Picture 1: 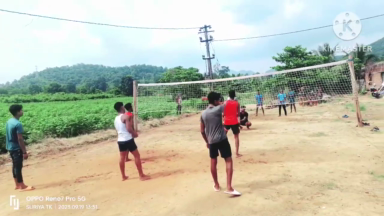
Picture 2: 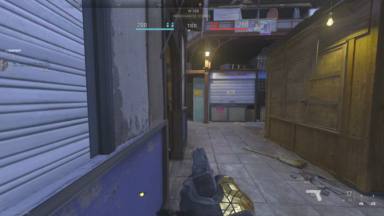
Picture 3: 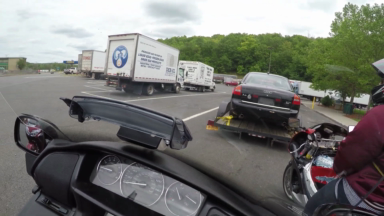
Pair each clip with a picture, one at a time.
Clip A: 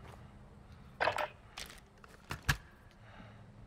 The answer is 2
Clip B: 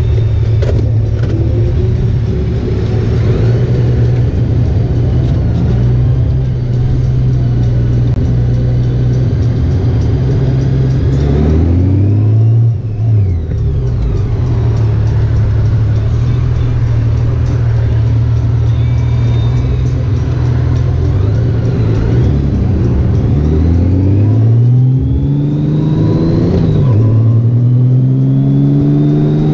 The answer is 3